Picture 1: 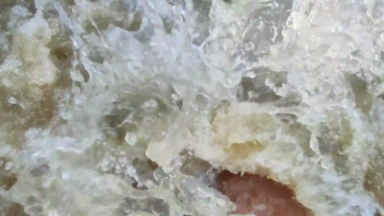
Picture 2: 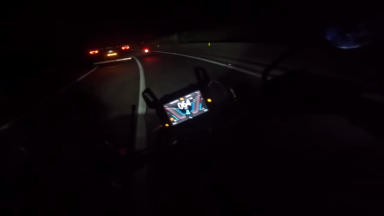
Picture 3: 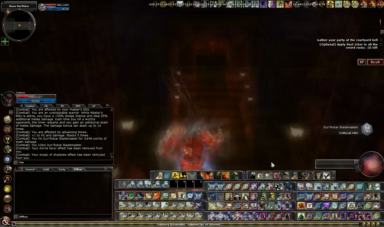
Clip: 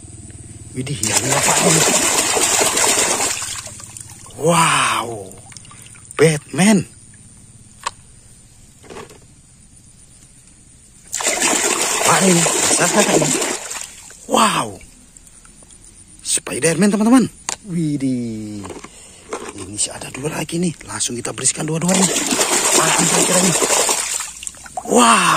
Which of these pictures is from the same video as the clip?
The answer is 1